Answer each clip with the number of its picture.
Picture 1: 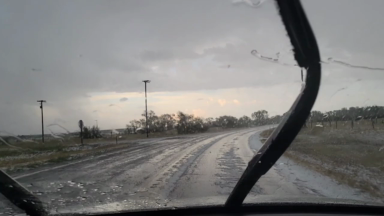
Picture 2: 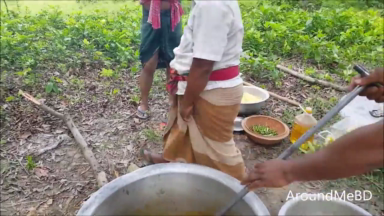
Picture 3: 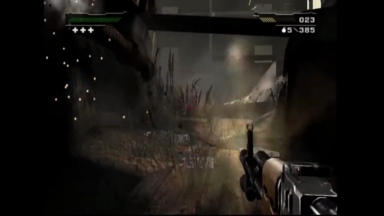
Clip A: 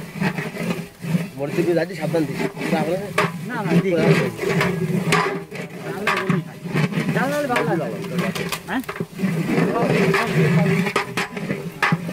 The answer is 2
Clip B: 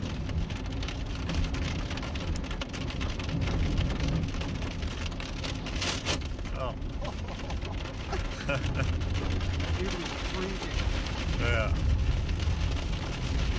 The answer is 1